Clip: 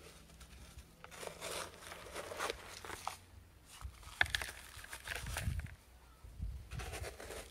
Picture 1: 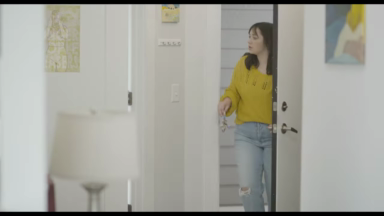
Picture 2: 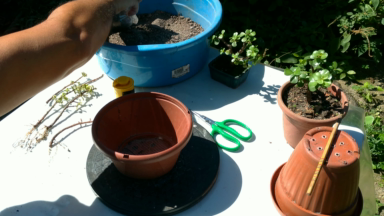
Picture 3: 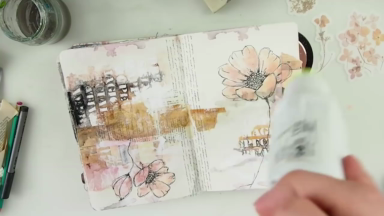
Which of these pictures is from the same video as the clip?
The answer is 2